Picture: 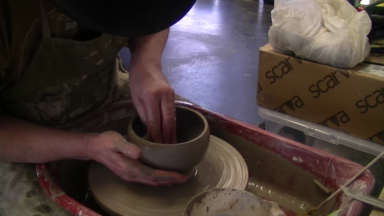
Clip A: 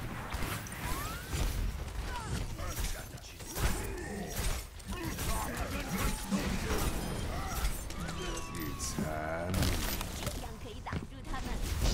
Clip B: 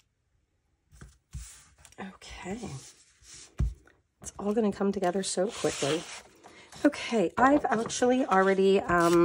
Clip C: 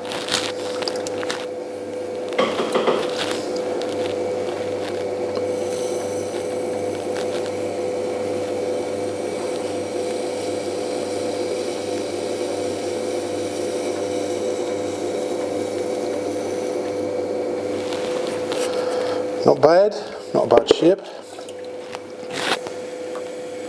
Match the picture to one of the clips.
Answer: C